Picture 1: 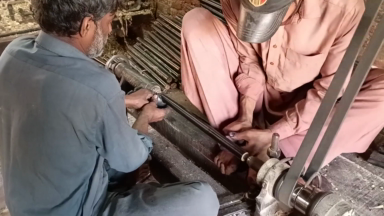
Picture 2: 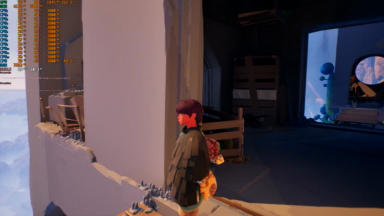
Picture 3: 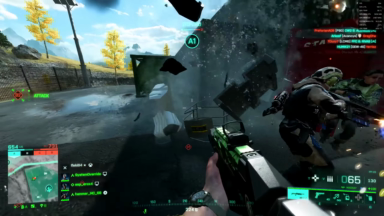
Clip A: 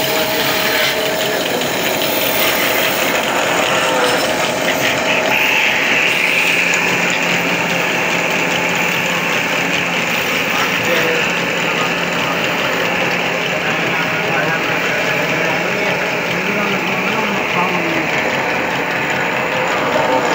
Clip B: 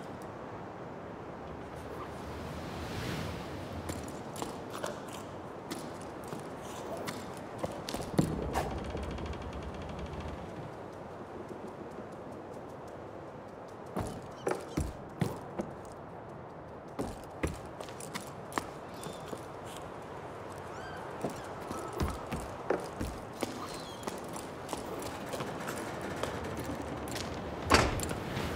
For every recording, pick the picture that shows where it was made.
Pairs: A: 1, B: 2